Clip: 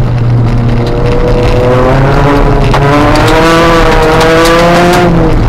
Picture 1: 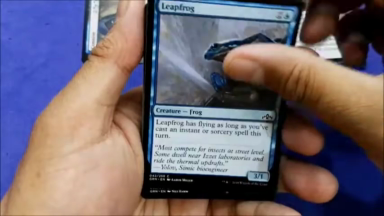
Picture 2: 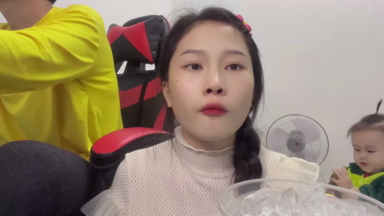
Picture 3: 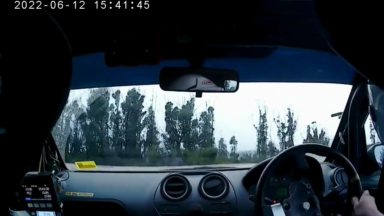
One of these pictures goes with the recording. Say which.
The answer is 3